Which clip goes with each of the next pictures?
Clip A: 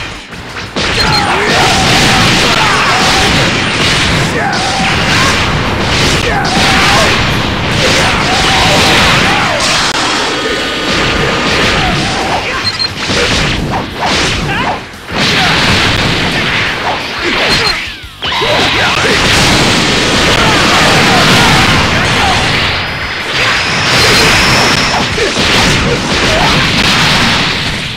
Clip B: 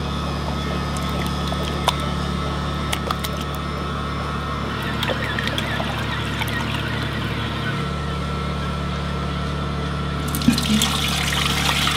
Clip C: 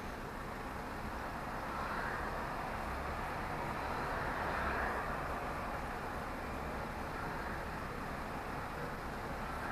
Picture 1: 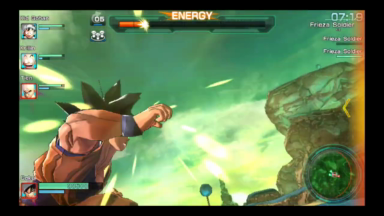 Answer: A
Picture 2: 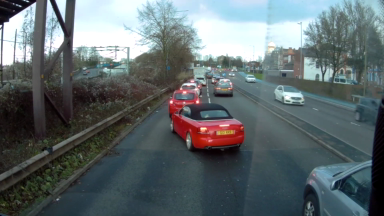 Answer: C